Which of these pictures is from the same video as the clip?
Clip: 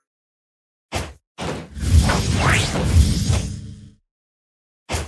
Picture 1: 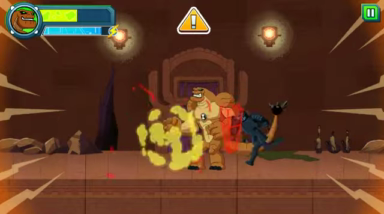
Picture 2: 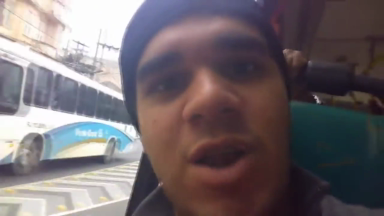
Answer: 1